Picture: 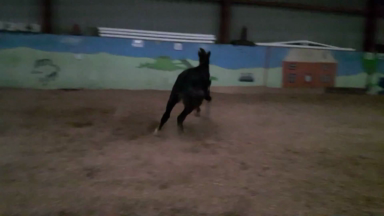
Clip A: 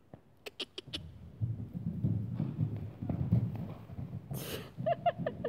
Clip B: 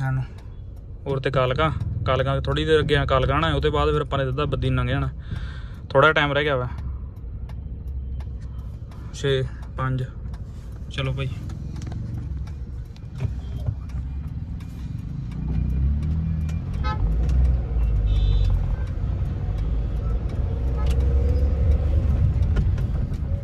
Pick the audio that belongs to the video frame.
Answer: A